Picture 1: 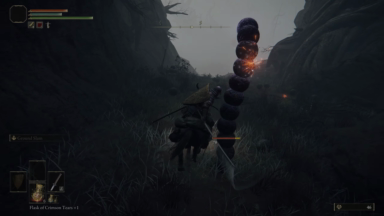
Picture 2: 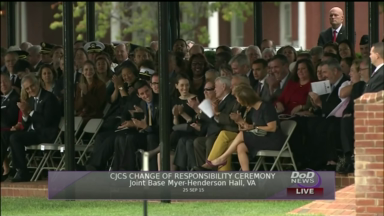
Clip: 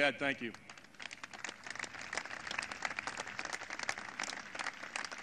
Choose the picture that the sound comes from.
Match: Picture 2